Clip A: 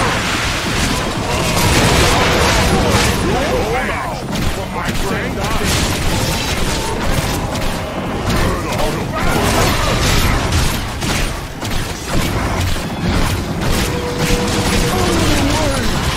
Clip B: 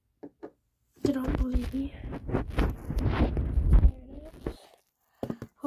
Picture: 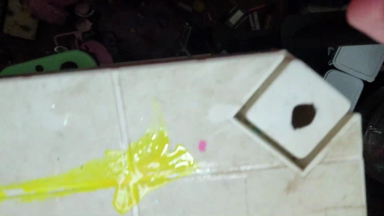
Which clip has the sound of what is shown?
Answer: B